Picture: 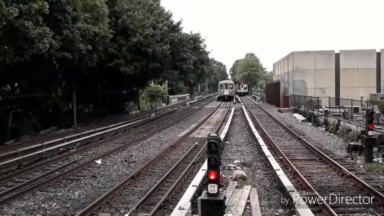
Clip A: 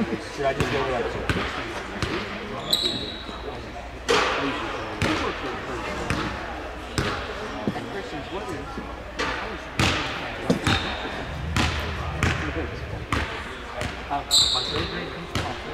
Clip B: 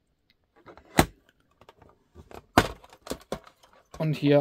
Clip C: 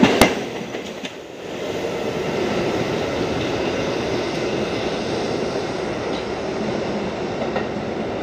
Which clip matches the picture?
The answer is C